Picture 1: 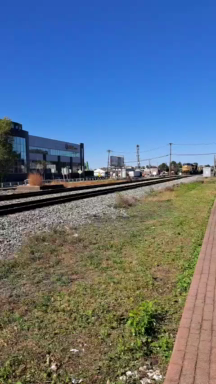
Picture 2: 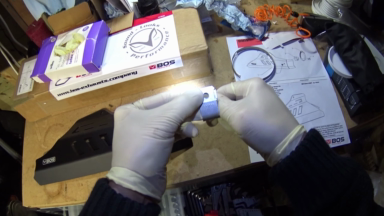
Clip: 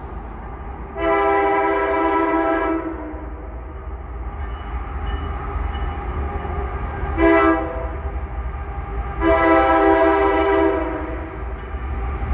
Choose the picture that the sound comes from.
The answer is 1